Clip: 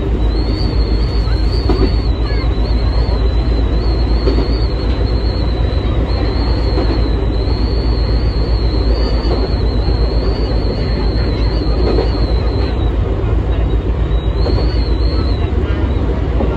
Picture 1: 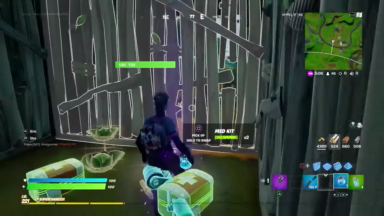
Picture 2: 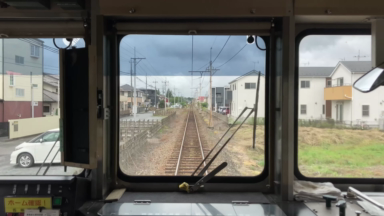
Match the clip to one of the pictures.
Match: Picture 2